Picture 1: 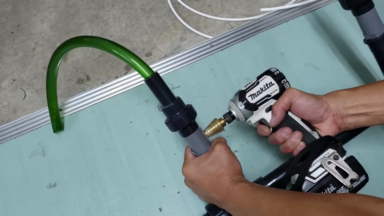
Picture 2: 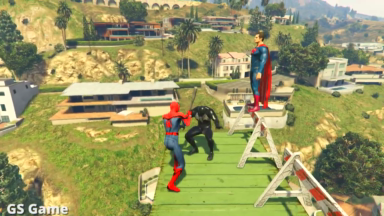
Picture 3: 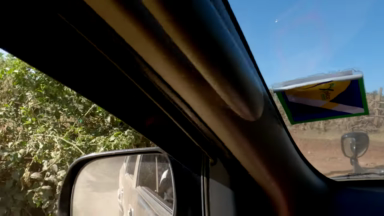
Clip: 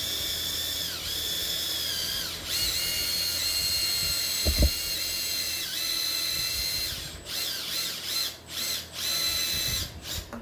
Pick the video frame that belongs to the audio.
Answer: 1